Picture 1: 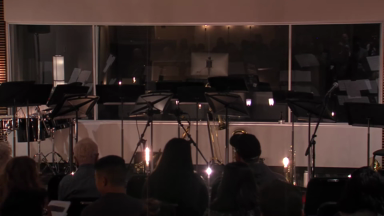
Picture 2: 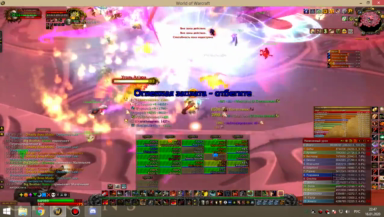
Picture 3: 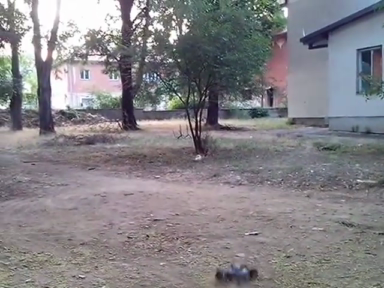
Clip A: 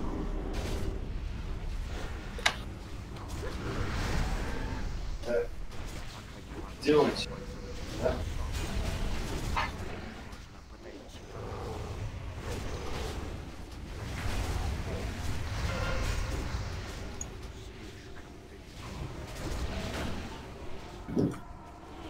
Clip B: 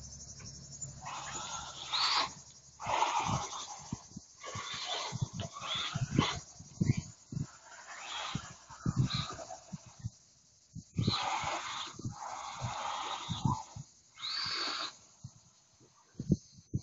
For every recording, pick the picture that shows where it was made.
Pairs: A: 2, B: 3